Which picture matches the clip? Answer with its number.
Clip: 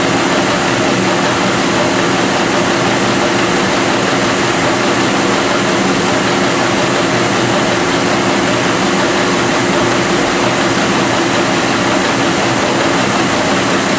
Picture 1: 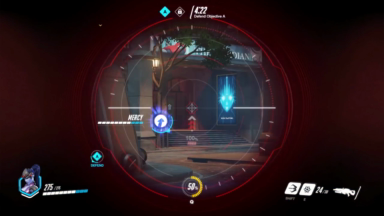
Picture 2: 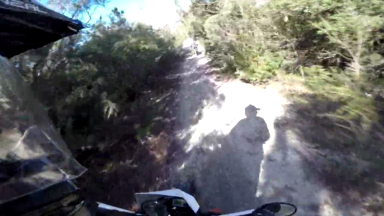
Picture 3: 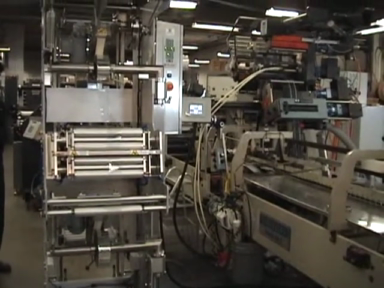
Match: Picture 3